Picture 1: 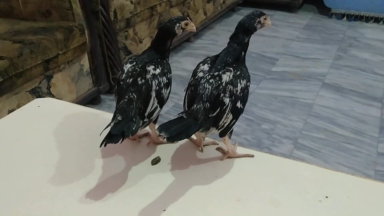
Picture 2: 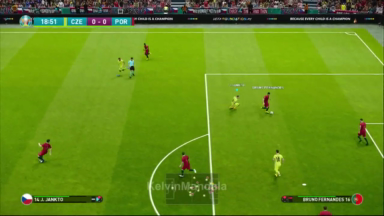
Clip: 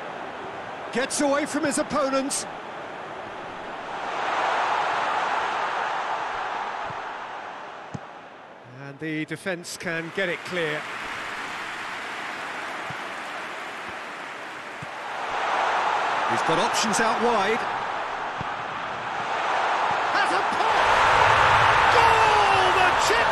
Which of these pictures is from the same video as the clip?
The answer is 2